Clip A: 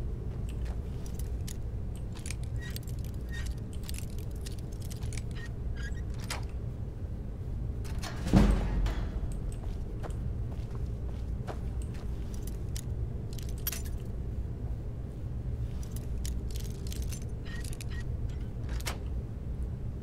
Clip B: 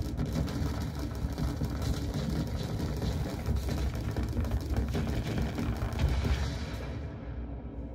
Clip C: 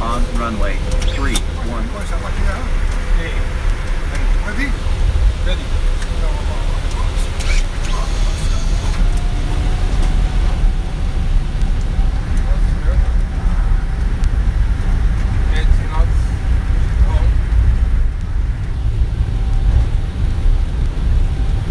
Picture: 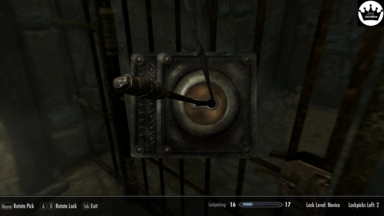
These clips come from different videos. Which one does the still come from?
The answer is A